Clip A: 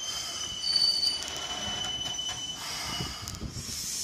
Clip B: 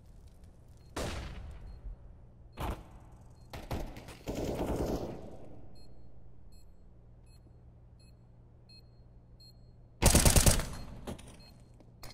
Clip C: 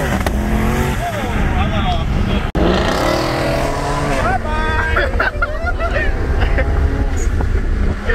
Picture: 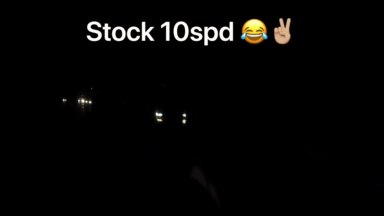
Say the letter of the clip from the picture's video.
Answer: C